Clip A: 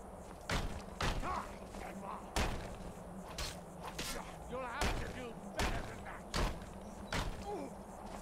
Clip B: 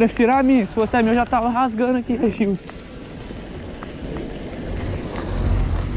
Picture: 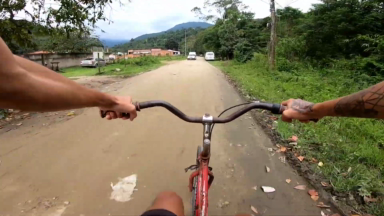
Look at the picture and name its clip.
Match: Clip B